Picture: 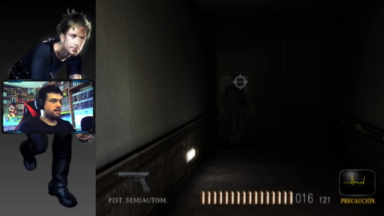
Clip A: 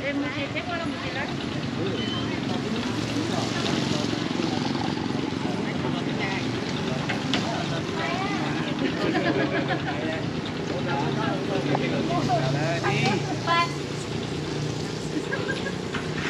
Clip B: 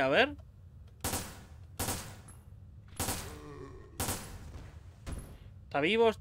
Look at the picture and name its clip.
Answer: B